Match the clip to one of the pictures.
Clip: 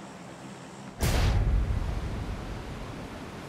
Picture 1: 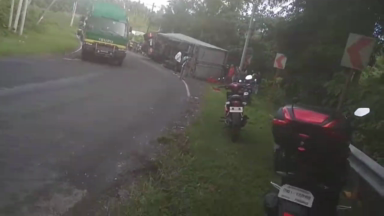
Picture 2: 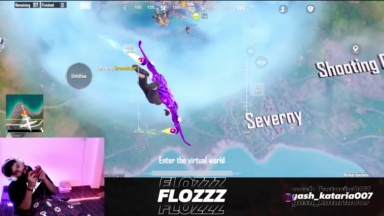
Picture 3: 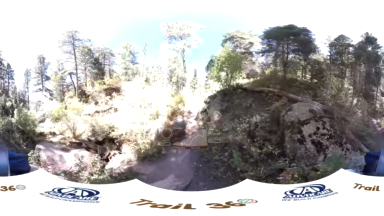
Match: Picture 2